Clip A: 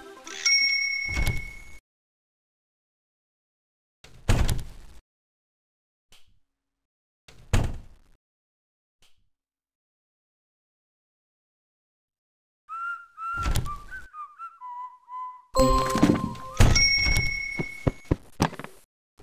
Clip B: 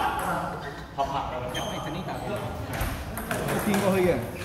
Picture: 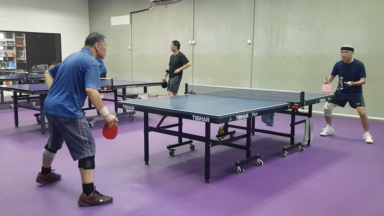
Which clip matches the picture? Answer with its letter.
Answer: B